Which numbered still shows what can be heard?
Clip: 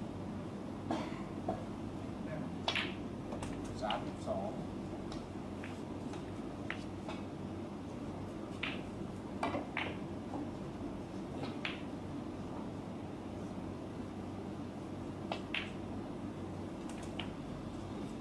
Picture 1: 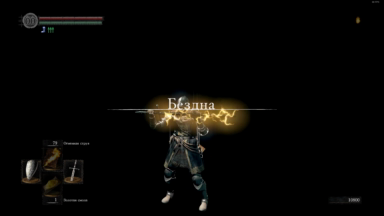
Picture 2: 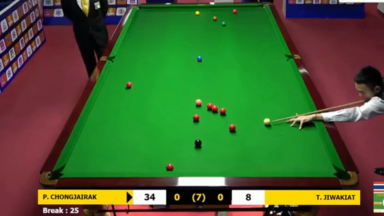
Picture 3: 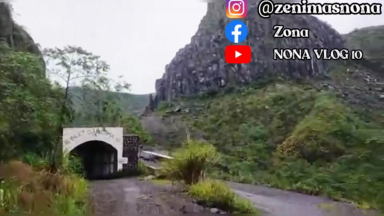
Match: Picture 2